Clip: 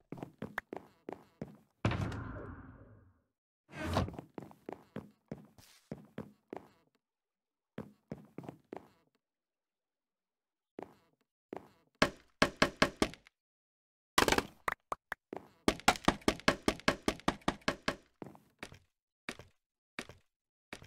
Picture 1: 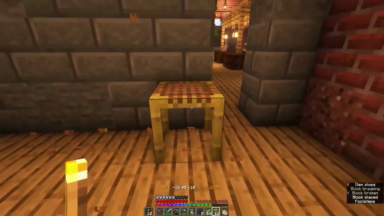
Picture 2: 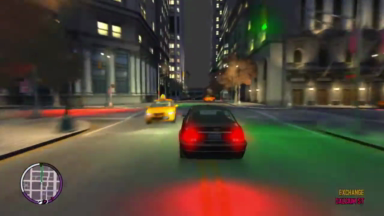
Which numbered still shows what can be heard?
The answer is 1